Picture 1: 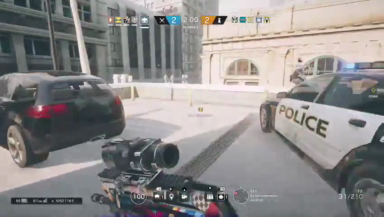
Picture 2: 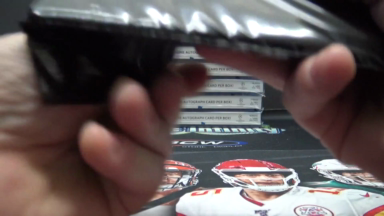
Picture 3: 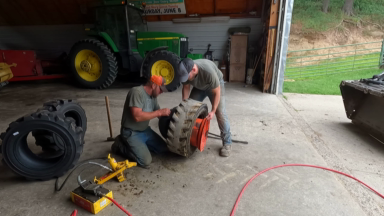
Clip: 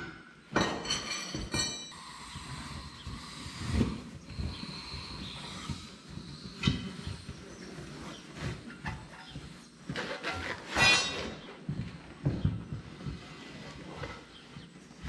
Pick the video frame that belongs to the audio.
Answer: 3